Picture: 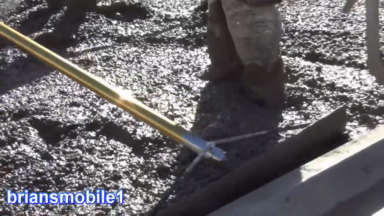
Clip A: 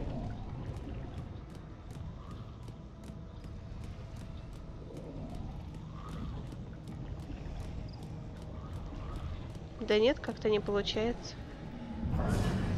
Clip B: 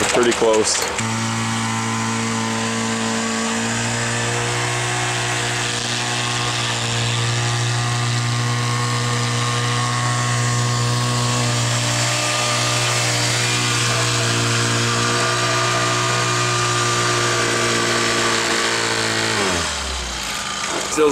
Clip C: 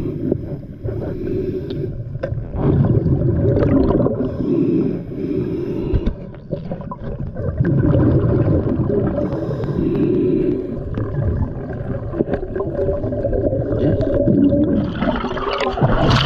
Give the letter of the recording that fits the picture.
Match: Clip B